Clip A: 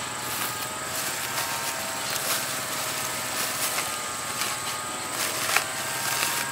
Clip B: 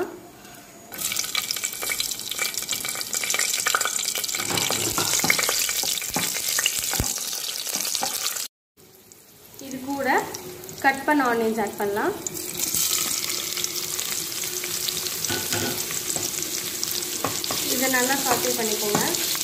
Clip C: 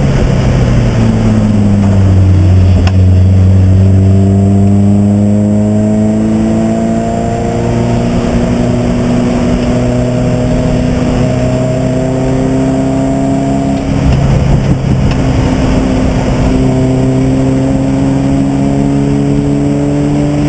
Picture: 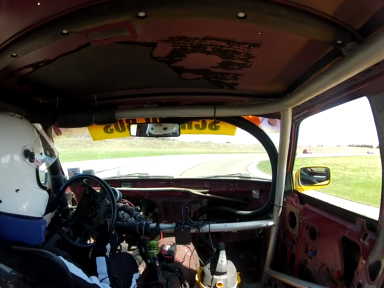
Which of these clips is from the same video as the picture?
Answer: C